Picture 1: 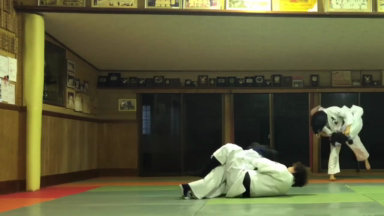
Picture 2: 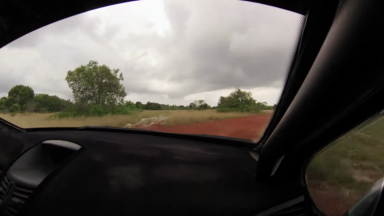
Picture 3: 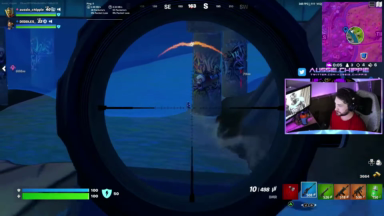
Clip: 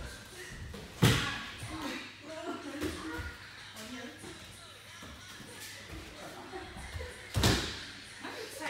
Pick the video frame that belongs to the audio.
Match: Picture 1